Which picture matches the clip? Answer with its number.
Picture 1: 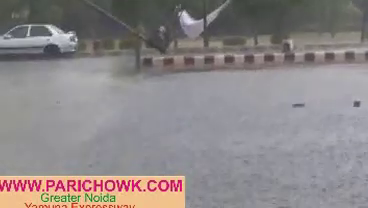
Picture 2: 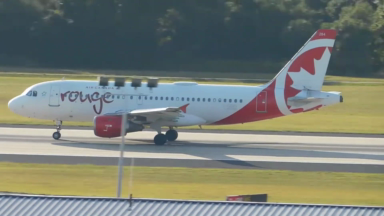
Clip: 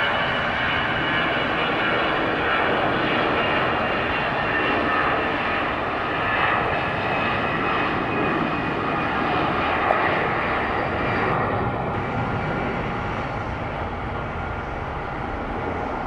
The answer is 2